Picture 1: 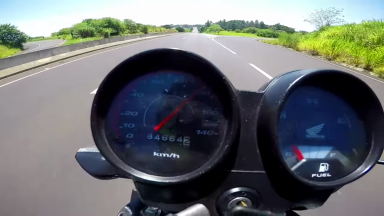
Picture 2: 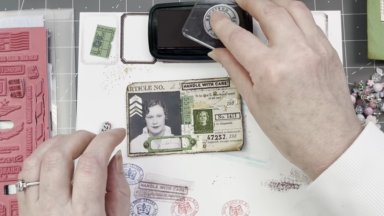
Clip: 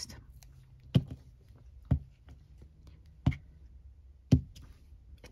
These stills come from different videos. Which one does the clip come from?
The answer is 2